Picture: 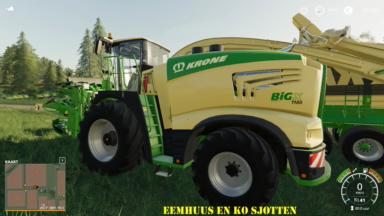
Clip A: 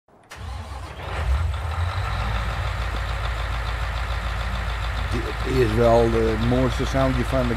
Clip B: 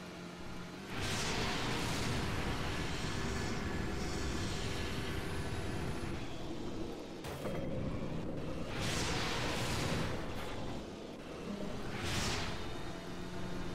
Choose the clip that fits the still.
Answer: A